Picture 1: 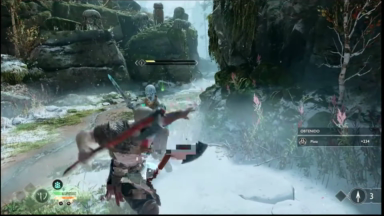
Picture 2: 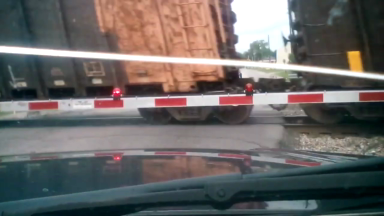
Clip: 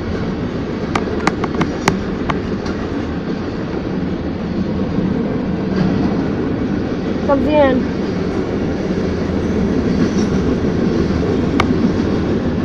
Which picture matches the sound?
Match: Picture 2